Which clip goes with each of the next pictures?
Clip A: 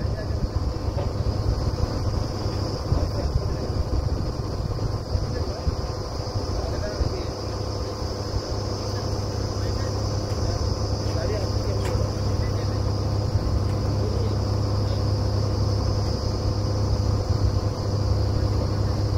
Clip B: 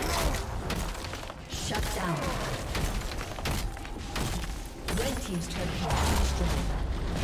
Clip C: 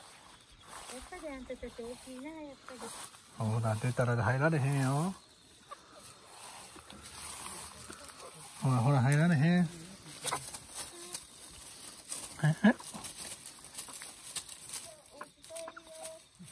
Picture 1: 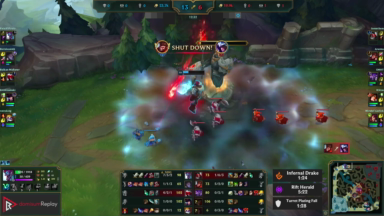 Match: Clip B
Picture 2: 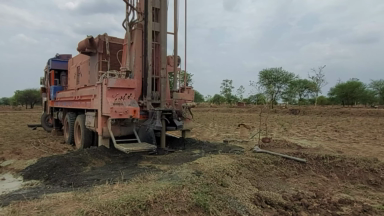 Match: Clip A